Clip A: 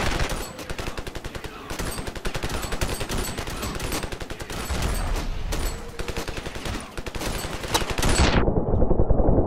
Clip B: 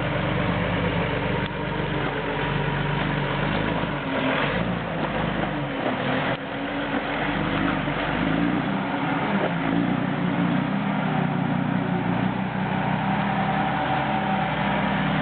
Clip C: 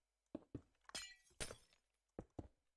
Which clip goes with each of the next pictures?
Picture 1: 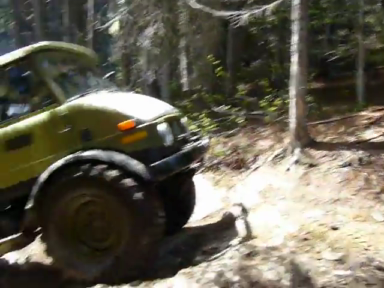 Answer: B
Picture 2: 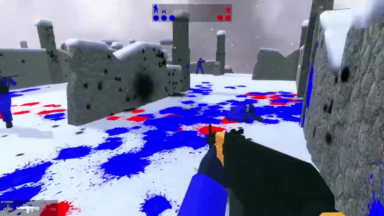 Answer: A